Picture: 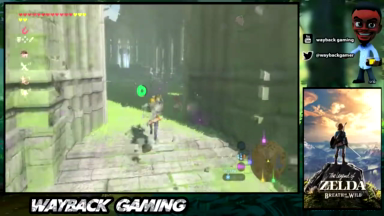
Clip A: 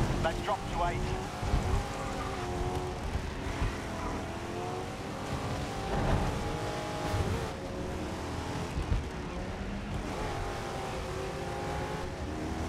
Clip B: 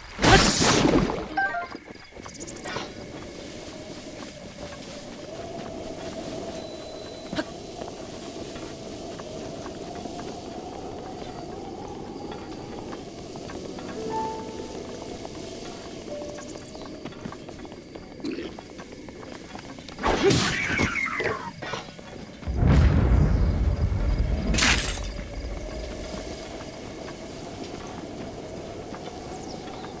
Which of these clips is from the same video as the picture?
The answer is B